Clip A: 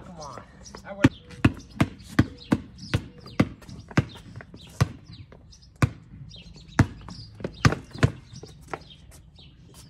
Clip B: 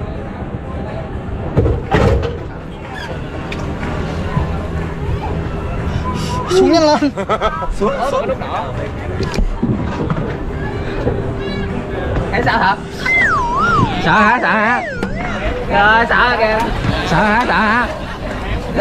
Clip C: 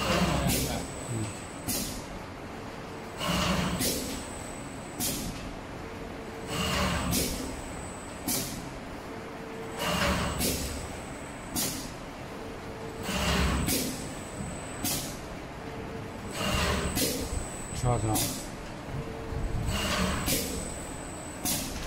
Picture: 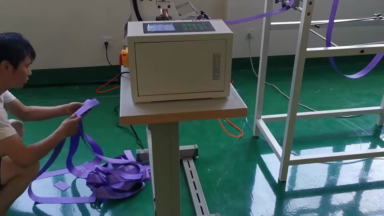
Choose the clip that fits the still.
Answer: C